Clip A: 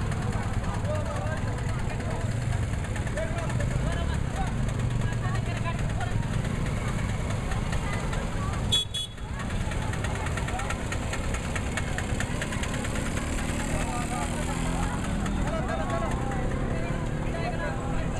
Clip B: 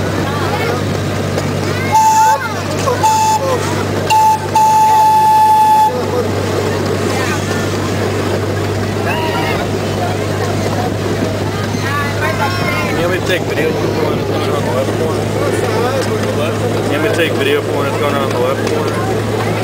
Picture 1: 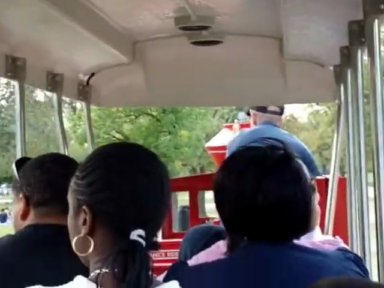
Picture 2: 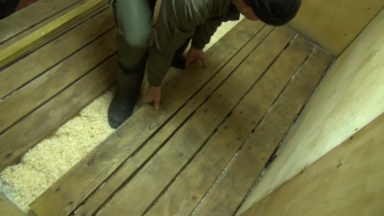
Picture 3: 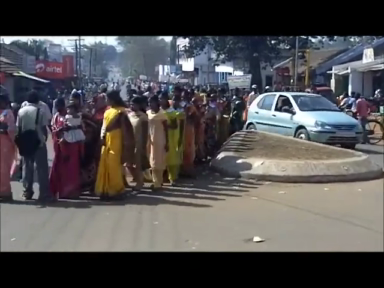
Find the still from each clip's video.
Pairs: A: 3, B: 1